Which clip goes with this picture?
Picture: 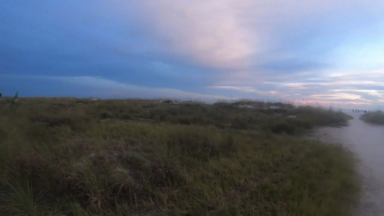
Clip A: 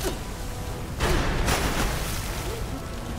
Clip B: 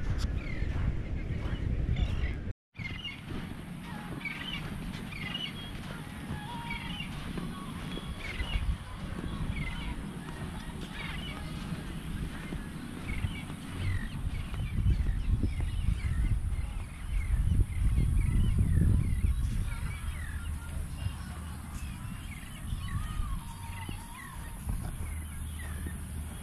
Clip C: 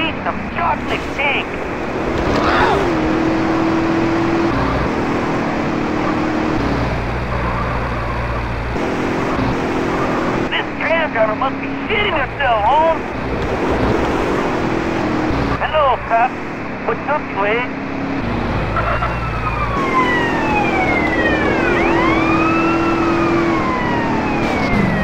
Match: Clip B